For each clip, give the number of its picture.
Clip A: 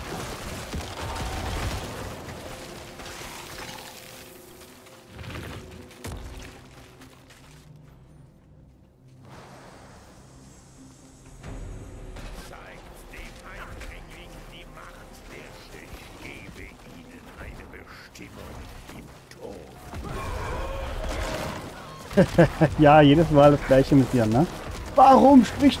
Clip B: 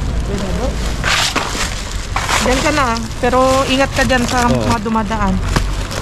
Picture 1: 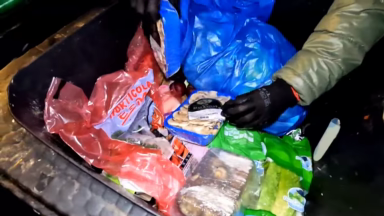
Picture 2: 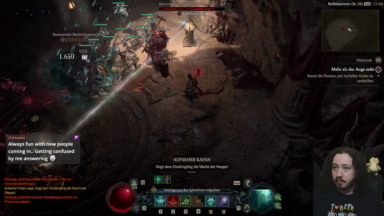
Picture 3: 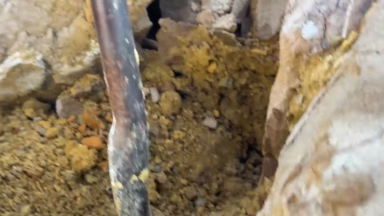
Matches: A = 2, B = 1